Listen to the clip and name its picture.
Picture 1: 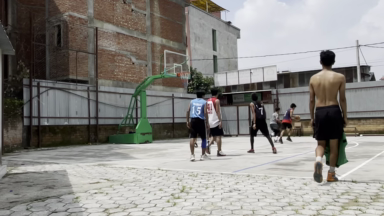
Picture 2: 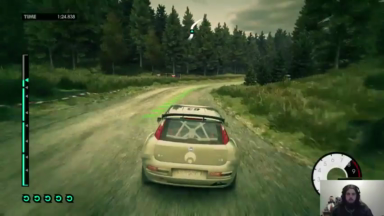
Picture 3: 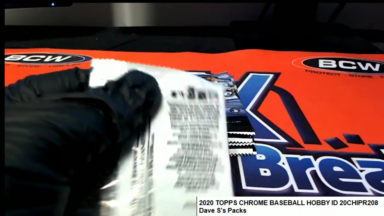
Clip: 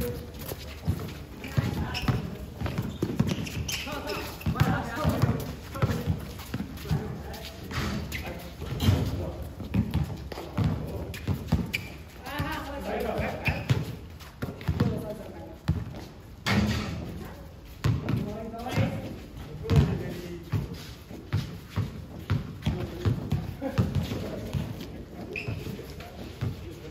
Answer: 1